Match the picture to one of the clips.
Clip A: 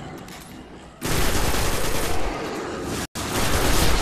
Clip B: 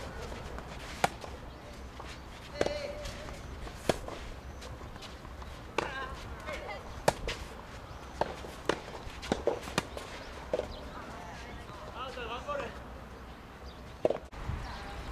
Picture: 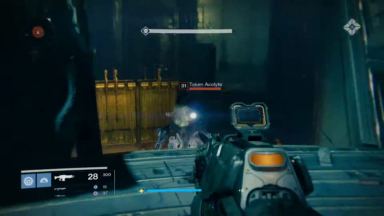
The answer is A